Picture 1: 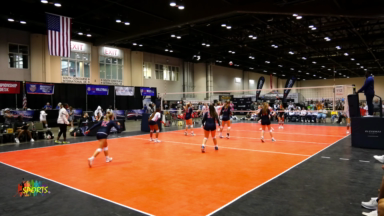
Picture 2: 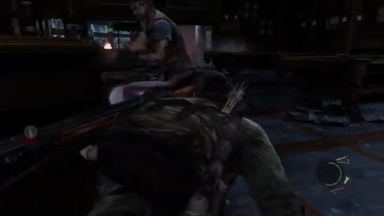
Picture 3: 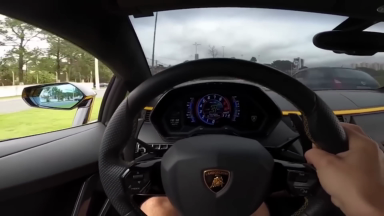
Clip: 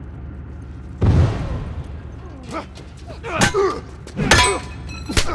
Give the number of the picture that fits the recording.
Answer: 2